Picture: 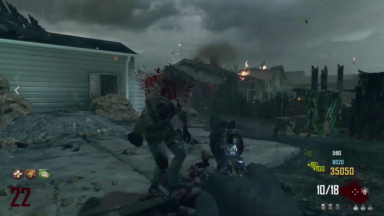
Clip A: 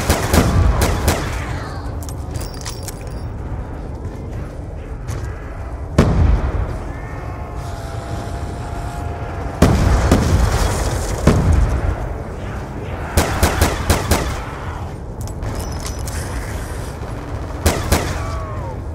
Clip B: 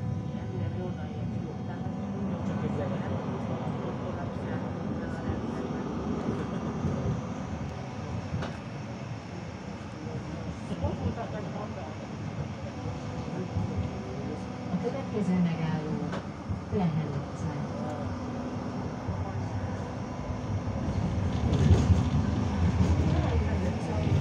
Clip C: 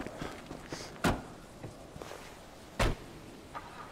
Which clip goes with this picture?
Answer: A